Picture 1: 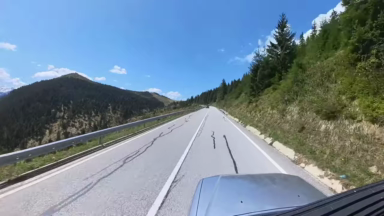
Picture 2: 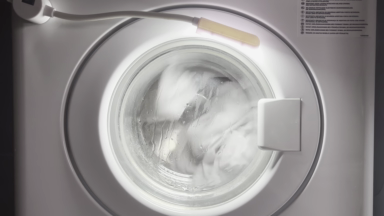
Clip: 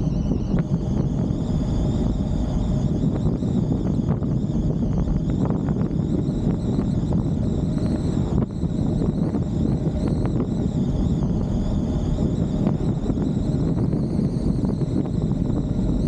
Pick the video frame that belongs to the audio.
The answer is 1